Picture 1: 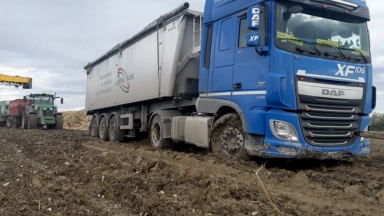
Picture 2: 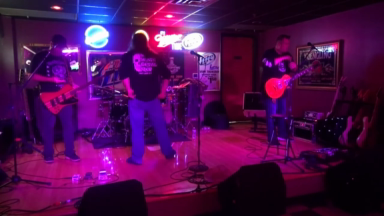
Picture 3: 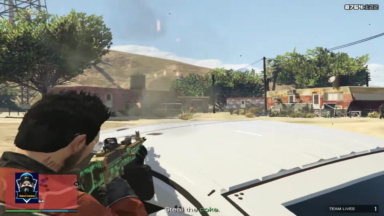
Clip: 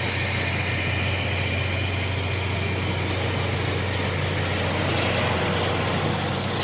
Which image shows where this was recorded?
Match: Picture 1